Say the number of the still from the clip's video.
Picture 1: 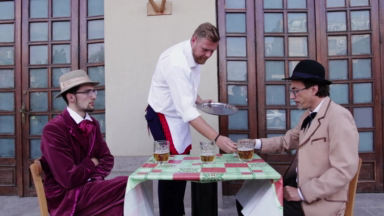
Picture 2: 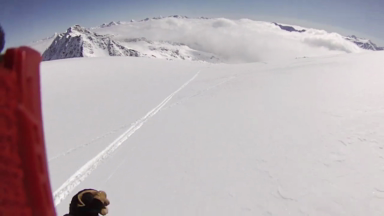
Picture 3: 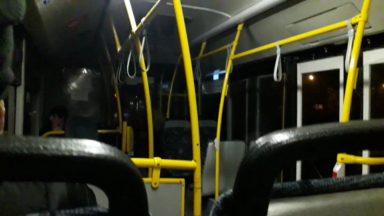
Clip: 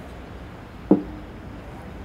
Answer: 1